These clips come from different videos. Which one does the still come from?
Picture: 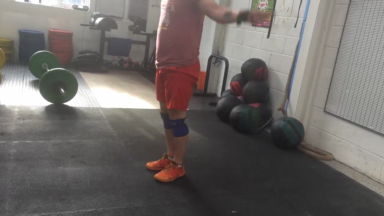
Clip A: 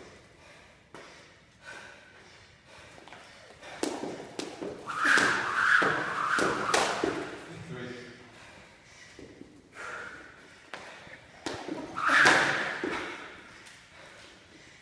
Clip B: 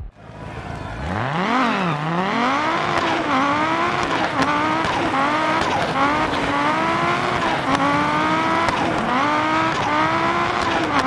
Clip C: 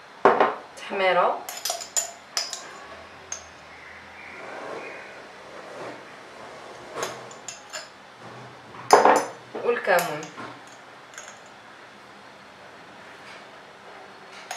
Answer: A